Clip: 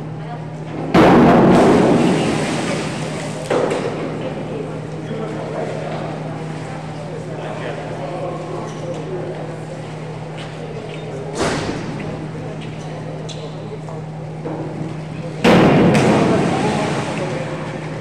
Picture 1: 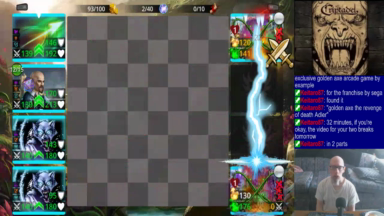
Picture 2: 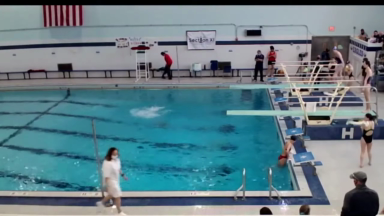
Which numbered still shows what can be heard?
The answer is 2